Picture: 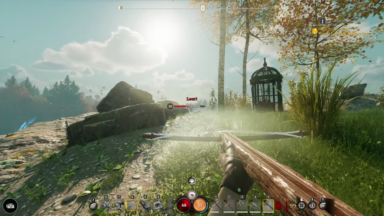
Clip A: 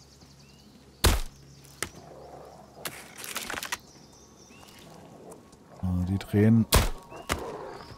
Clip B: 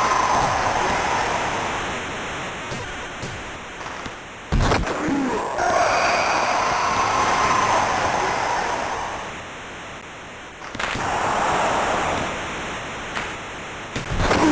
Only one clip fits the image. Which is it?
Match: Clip A